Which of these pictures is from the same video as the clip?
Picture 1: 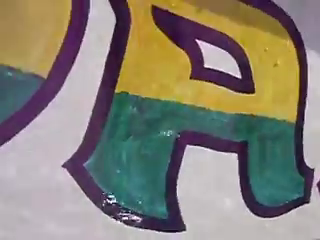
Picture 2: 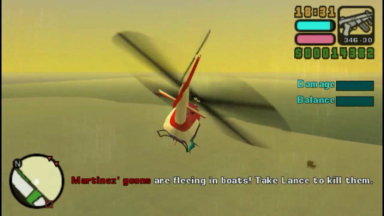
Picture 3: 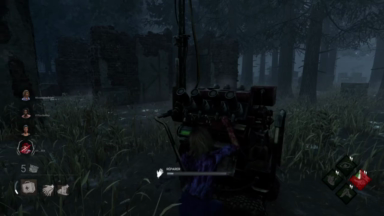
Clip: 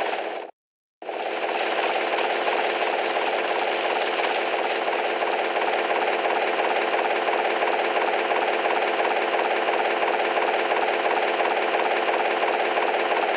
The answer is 2